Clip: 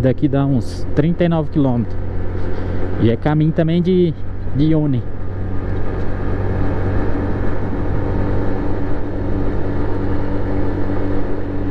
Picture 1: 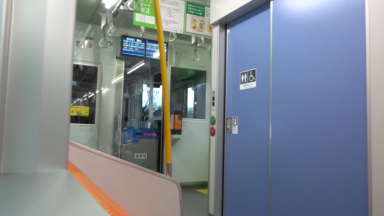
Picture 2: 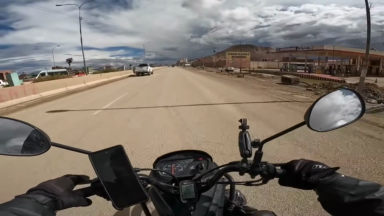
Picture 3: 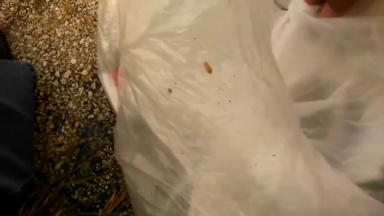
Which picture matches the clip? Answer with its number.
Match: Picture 2